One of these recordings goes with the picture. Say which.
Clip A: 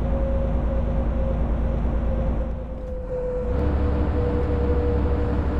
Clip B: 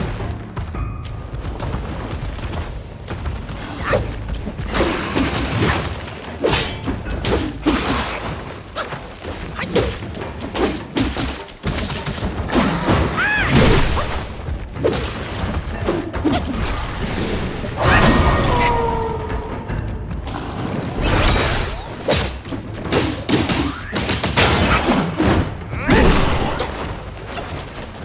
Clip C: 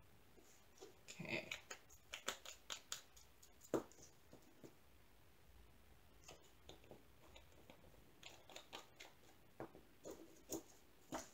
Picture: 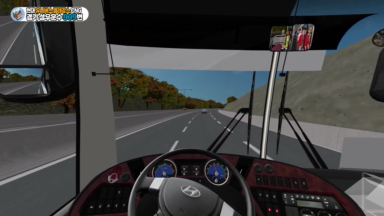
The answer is A